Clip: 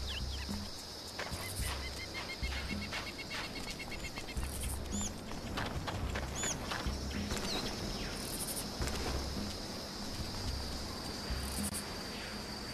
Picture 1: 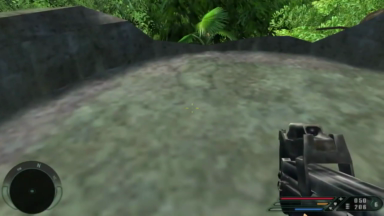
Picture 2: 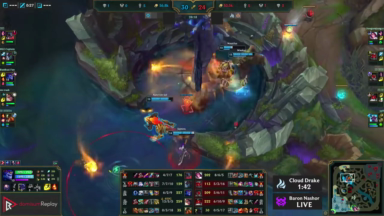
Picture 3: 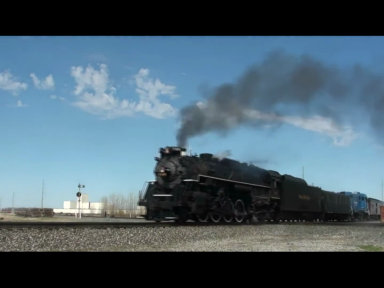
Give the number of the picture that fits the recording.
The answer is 1